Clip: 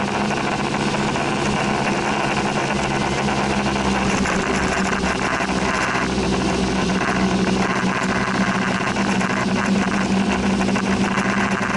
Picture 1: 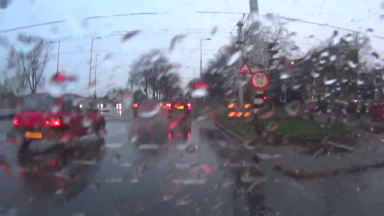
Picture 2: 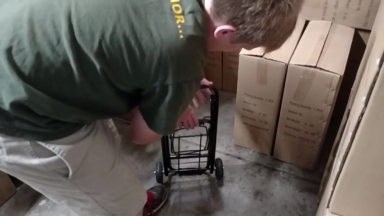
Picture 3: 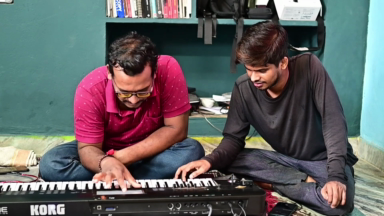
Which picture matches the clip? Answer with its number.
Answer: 1